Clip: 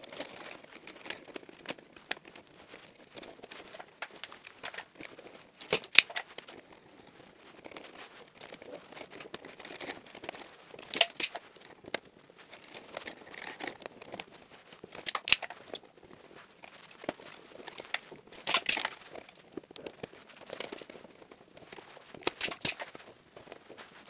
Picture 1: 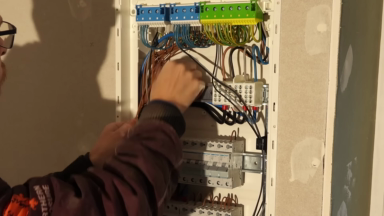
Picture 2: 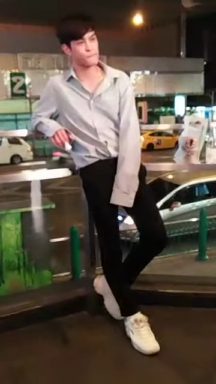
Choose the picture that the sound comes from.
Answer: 1